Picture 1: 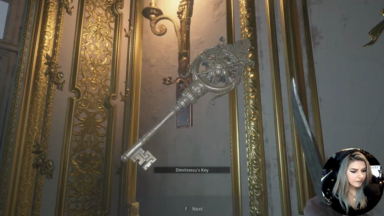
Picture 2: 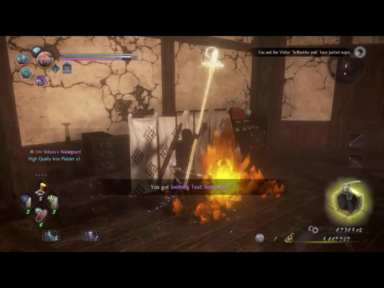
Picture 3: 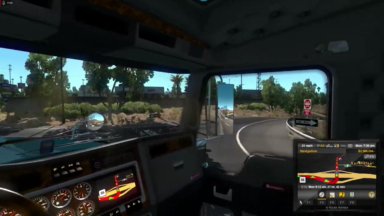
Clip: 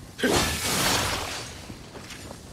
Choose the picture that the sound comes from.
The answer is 2